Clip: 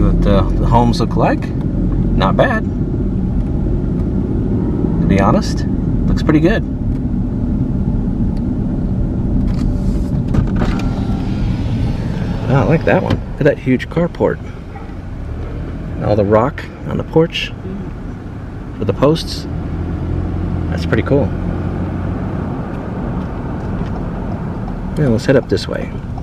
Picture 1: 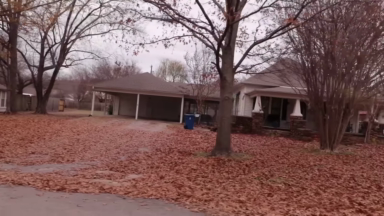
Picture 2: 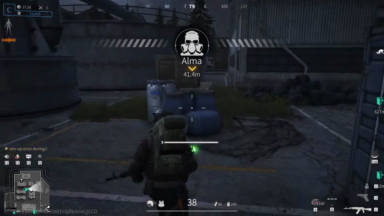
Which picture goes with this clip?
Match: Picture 1